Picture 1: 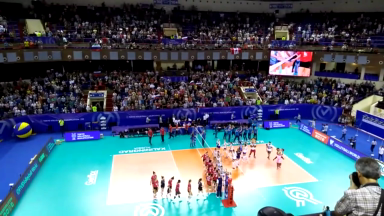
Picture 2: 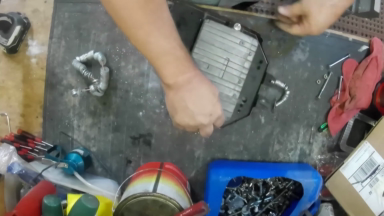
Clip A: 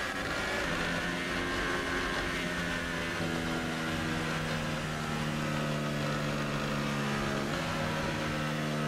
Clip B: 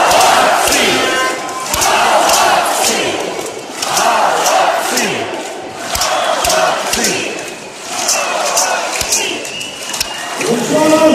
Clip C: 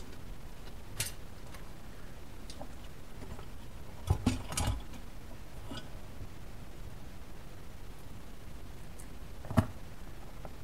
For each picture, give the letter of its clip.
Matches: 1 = B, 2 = C